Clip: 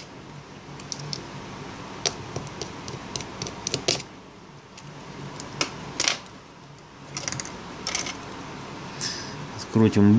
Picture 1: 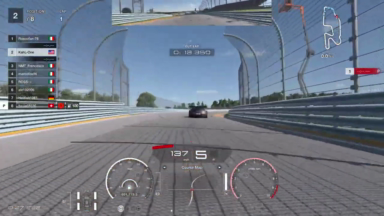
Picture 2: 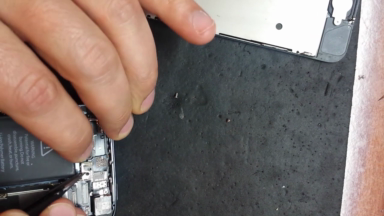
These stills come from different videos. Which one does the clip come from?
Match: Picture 2